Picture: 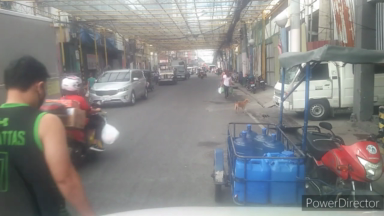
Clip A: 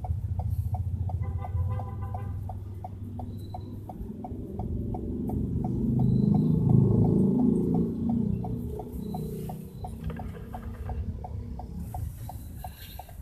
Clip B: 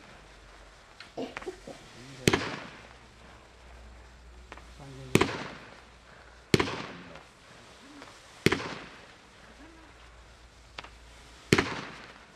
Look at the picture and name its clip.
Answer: A